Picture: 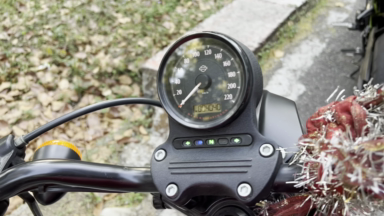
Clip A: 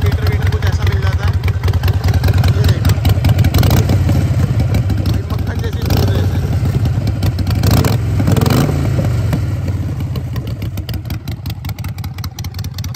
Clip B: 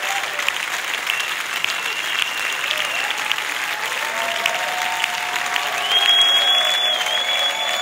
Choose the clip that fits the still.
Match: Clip A